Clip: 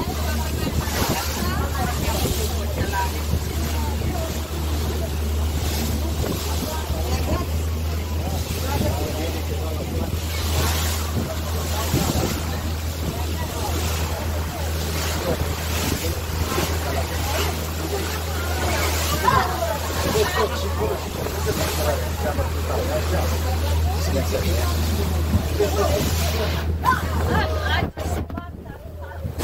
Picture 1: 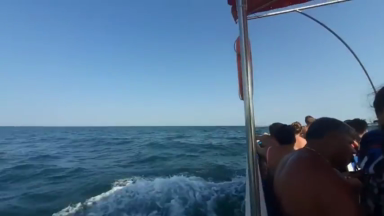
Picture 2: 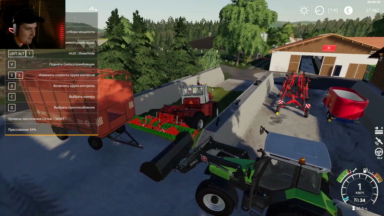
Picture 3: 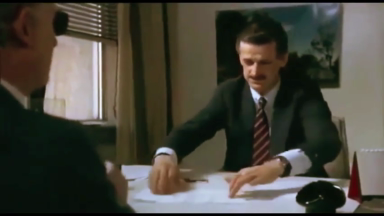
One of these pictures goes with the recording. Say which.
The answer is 1